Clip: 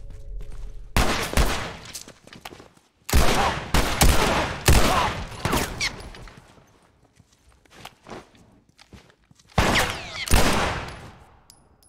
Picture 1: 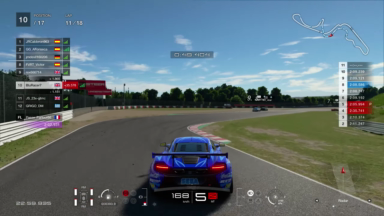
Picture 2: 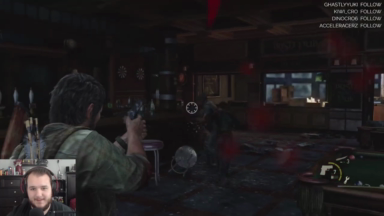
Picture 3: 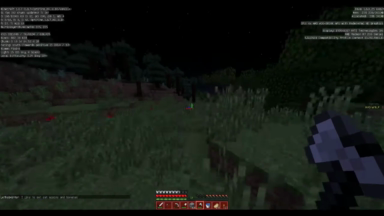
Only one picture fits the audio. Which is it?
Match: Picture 2